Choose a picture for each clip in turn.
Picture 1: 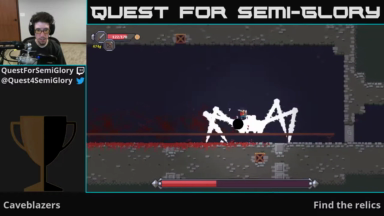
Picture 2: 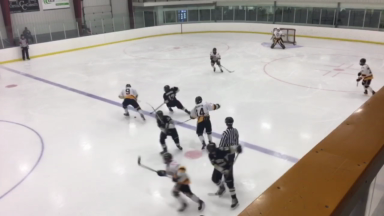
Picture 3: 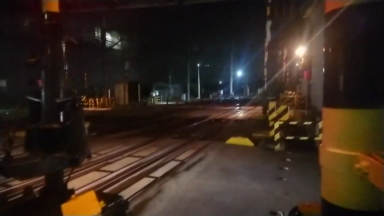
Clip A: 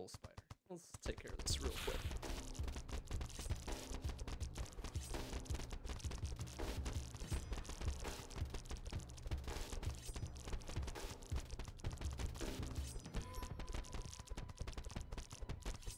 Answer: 1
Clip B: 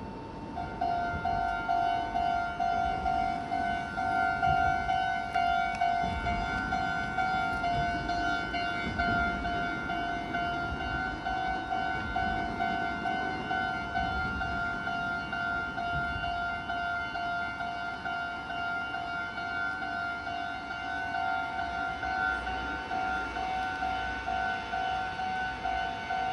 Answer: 3